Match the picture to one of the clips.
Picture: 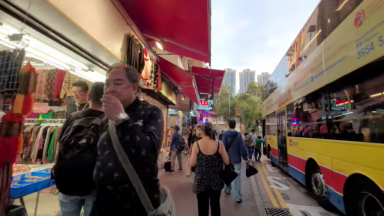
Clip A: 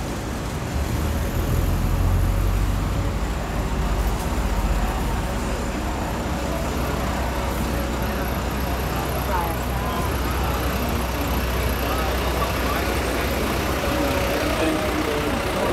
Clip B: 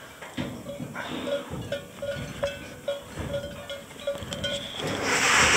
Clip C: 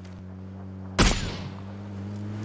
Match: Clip A